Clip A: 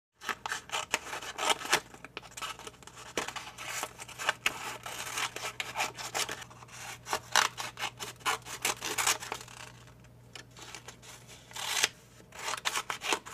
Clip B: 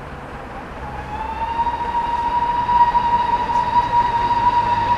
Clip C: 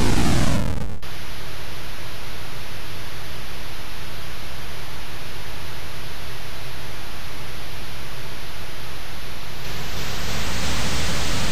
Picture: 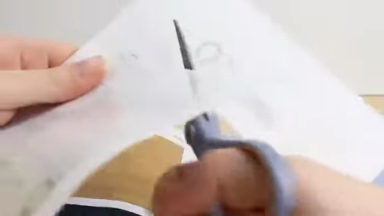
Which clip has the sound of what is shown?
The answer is A